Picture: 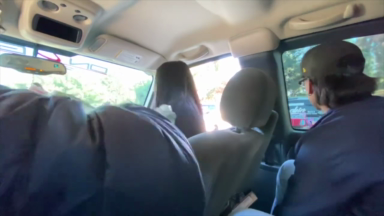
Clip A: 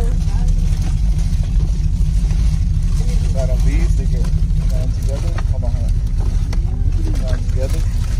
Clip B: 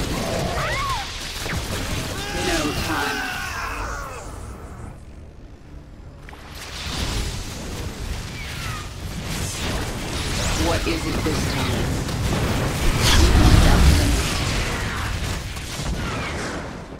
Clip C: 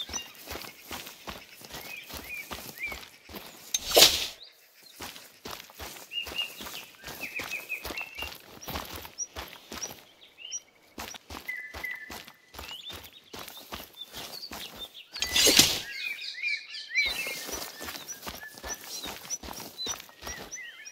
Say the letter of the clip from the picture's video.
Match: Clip A